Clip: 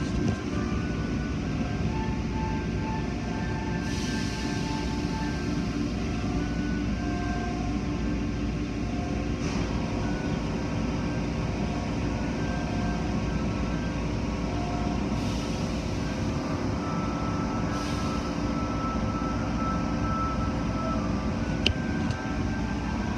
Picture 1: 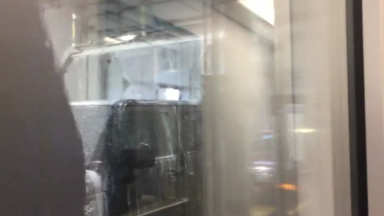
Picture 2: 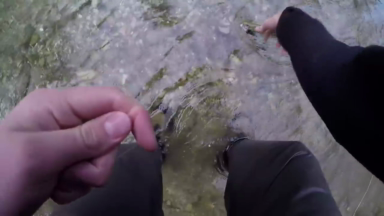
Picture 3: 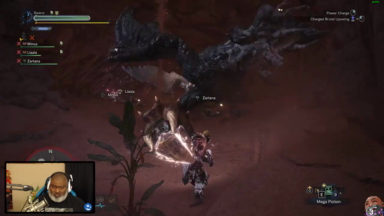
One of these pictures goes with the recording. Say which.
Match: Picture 1